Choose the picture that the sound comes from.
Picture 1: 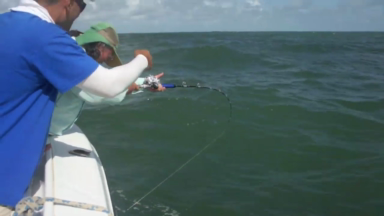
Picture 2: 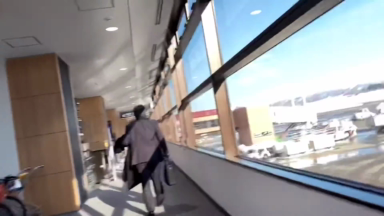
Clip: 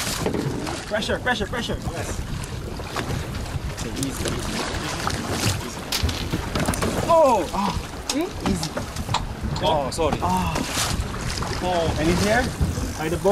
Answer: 1